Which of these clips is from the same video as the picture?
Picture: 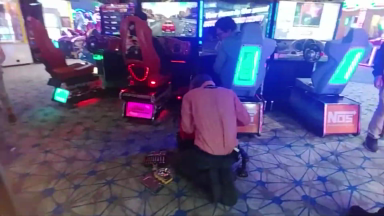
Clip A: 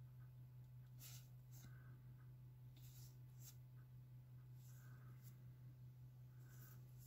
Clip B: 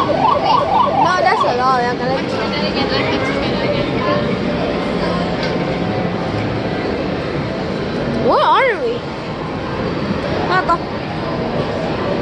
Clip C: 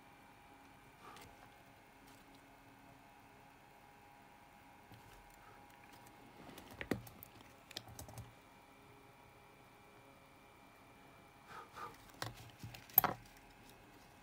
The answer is B